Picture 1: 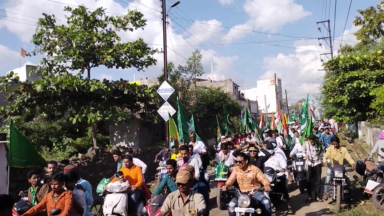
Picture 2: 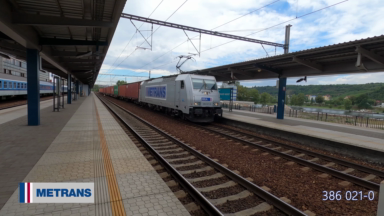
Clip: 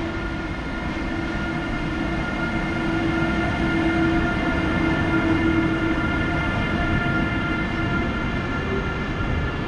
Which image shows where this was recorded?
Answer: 2